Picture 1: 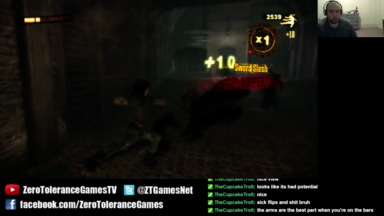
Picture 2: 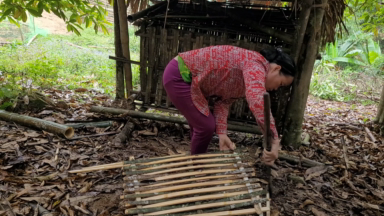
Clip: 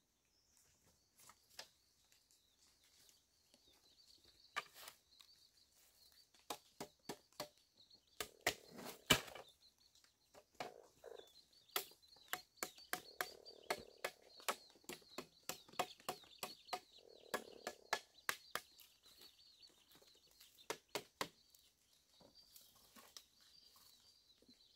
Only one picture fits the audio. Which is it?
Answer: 2